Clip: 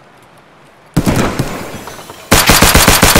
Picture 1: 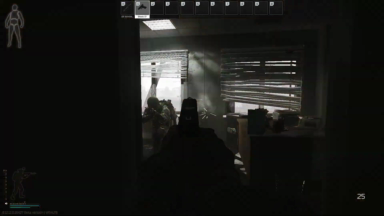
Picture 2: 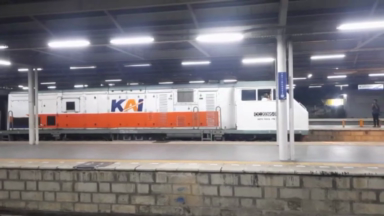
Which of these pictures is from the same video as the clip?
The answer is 1